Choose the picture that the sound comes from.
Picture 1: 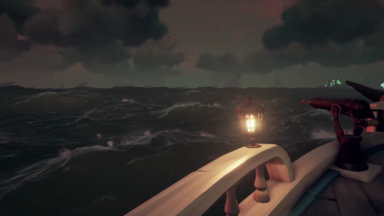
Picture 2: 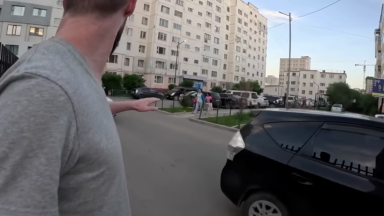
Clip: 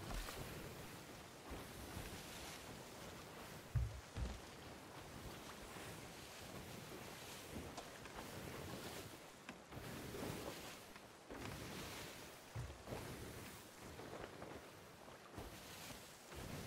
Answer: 1